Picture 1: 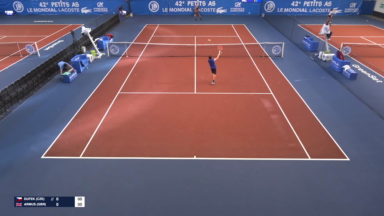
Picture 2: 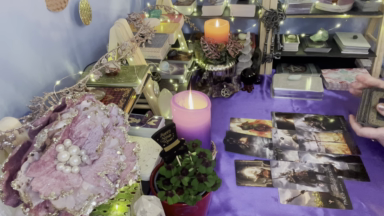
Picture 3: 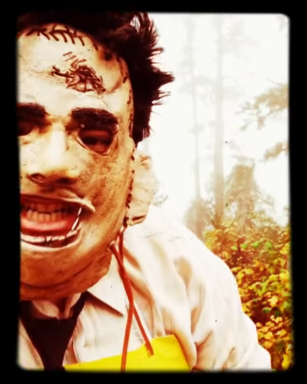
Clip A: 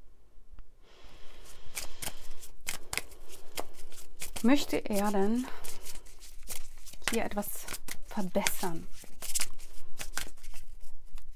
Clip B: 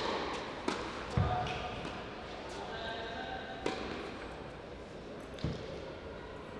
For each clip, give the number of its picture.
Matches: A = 2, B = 1